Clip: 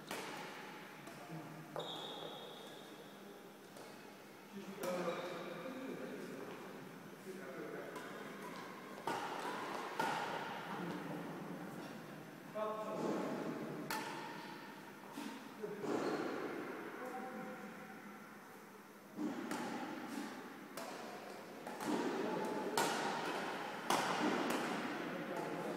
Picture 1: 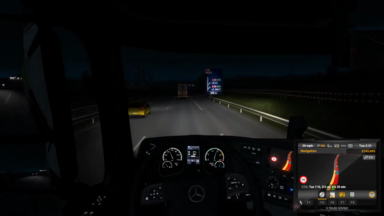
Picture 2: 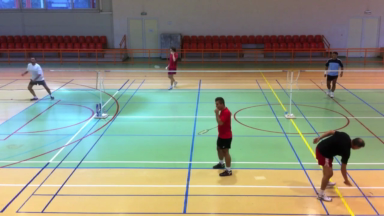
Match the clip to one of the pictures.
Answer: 2